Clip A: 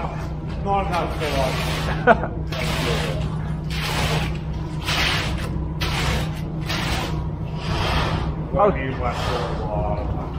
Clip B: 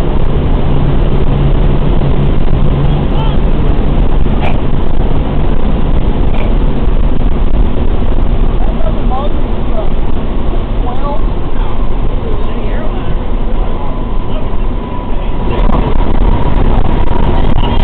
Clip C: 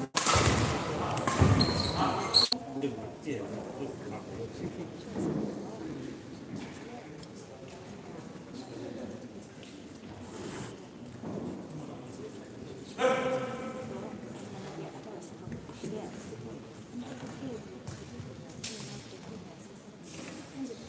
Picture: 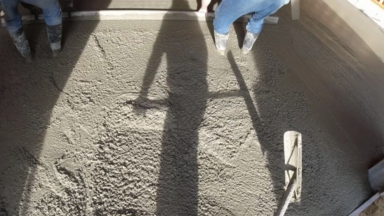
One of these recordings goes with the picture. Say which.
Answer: A